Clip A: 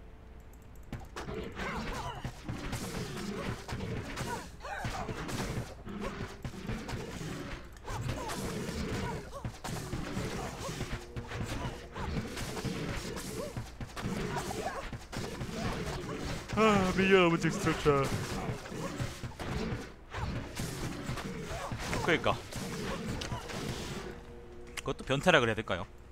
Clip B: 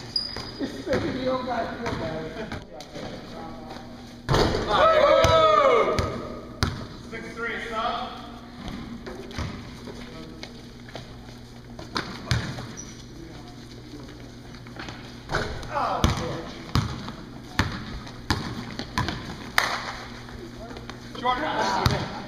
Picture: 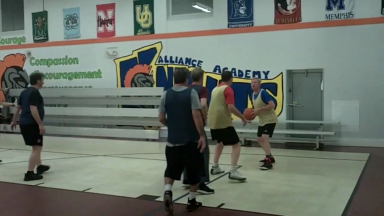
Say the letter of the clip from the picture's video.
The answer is B